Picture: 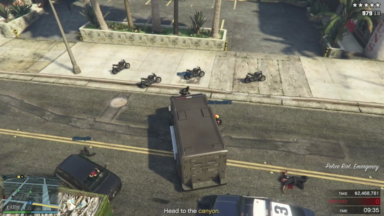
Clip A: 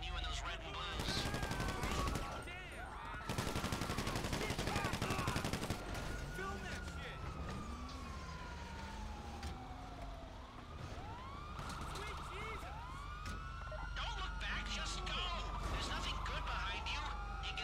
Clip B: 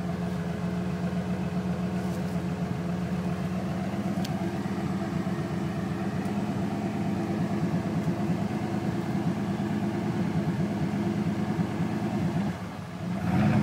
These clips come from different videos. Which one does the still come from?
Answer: A